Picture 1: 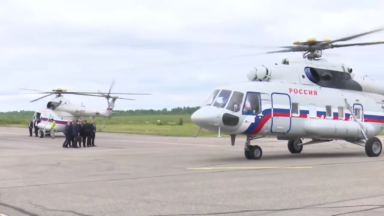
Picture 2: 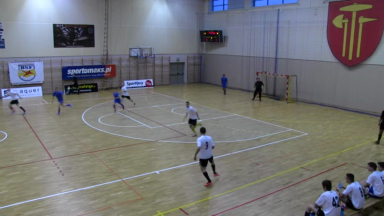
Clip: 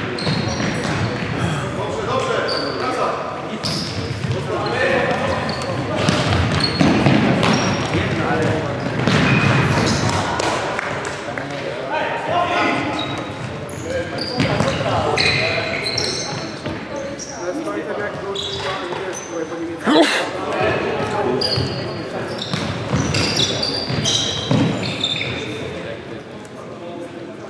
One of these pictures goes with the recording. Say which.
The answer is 2